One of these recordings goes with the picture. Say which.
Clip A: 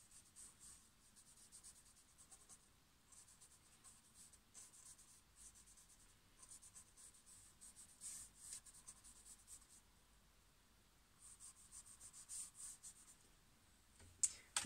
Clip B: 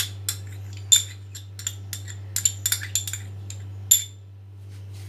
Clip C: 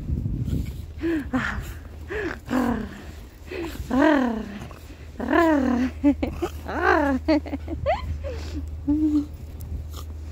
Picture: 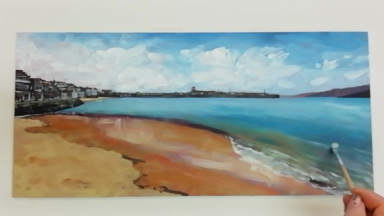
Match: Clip A